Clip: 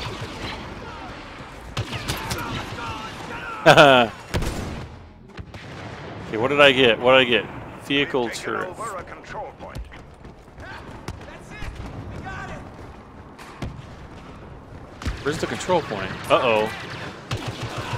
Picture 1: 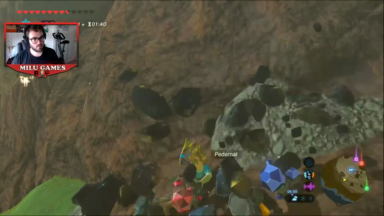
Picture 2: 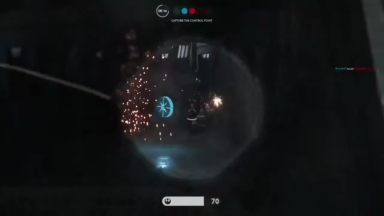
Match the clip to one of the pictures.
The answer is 2